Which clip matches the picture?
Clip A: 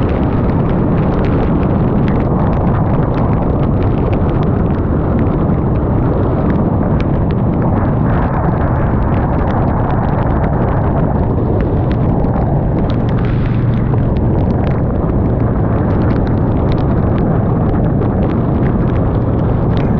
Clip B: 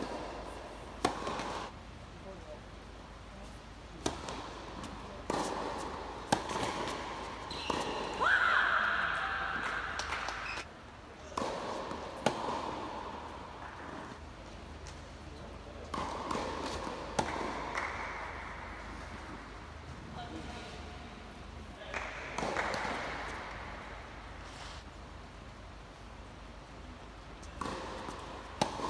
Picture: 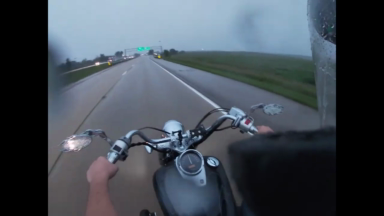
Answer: A